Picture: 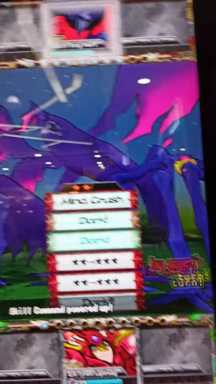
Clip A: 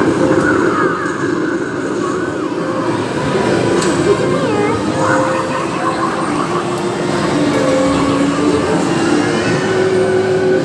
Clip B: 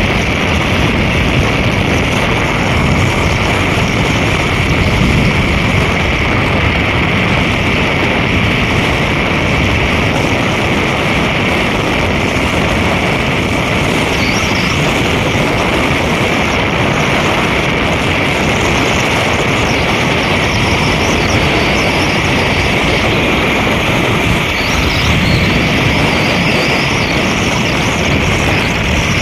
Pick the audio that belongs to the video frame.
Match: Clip A